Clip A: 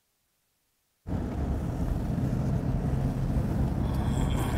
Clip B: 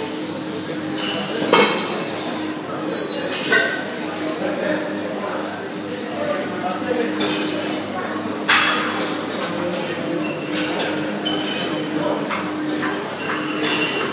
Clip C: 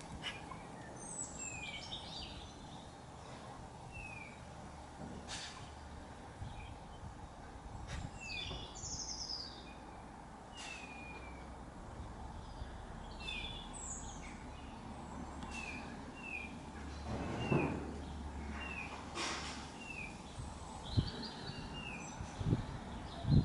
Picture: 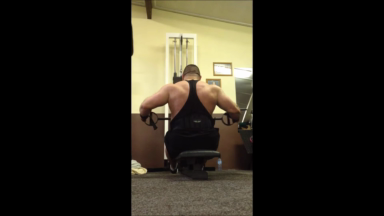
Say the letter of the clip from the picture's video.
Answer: B